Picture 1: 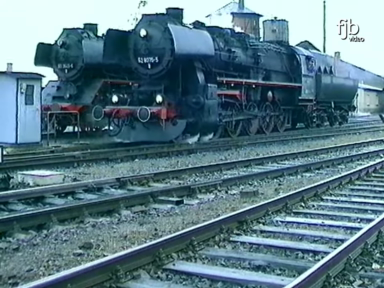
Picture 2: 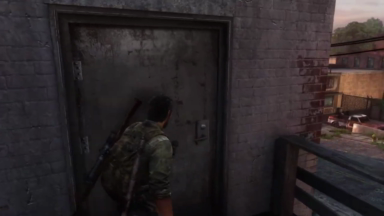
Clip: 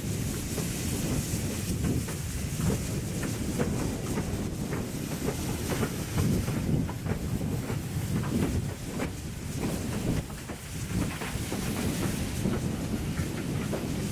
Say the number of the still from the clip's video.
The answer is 1